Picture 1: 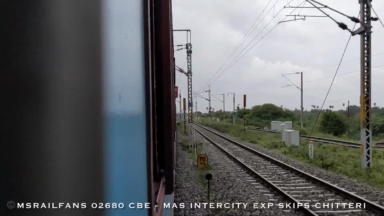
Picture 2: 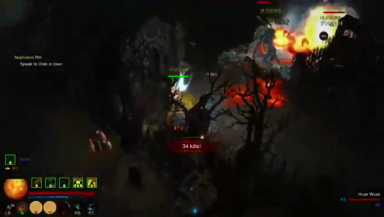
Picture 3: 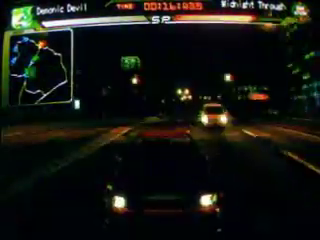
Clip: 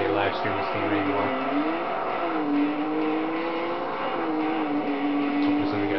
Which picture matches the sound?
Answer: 3